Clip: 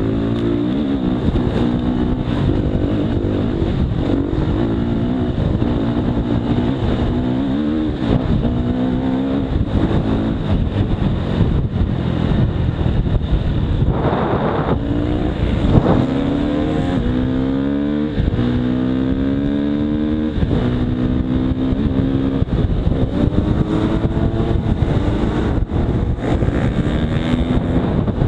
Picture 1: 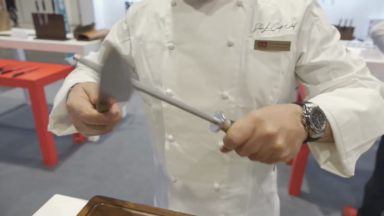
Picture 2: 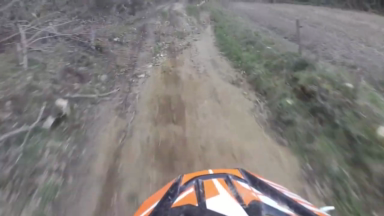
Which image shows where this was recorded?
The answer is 2